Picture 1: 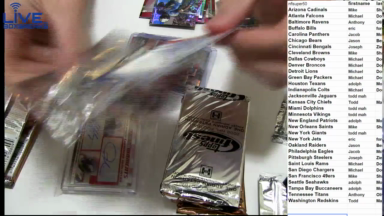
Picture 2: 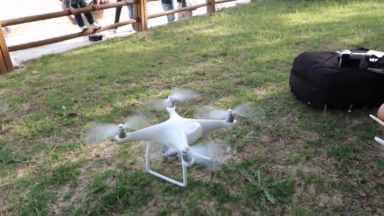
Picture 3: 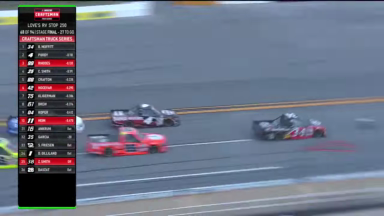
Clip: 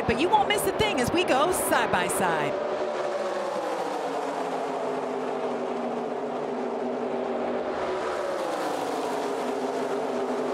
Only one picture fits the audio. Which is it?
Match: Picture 3